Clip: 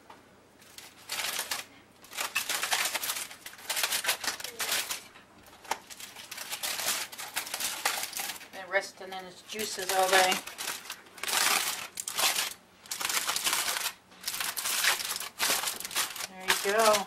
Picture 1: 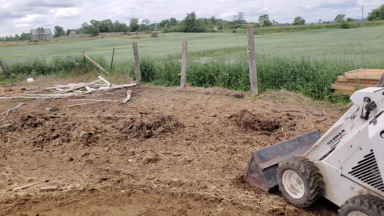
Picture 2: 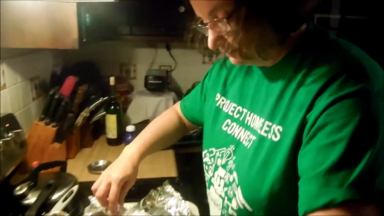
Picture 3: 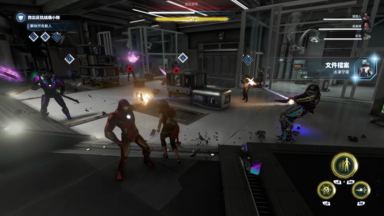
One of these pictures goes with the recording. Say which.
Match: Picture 2